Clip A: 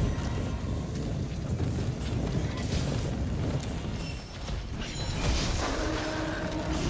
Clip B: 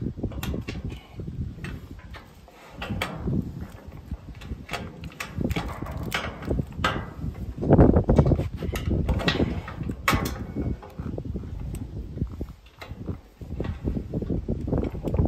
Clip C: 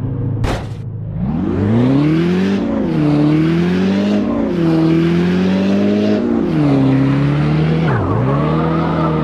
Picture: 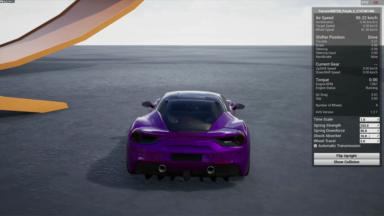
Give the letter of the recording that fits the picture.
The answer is C